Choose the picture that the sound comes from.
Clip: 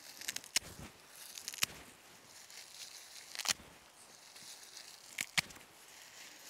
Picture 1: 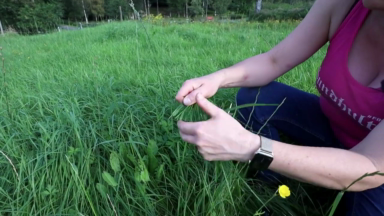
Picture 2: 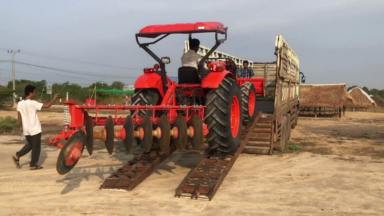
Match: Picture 1